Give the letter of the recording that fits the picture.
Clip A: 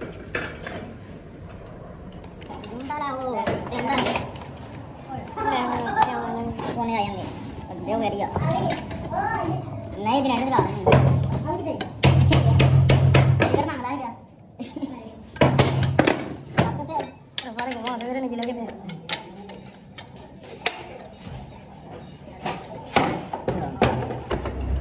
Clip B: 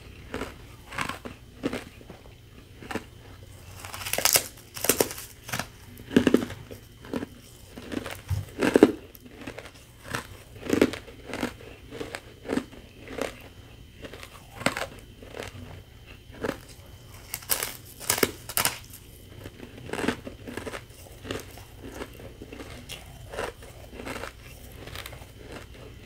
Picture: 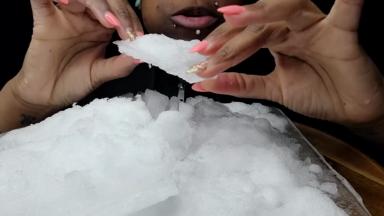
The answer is B